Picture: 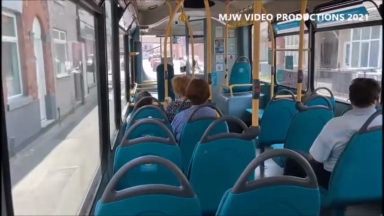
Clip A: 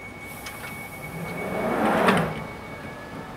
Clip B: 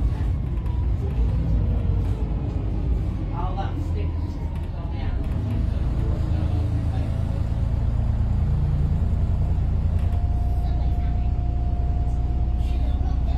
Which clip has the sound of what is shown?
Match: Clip B